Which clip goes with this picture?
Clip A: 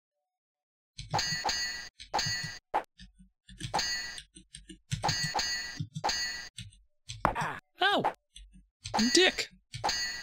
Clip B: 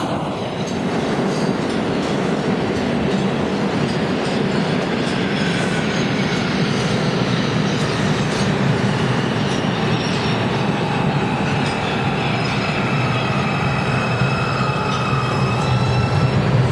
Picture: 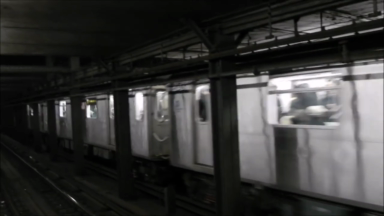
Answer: B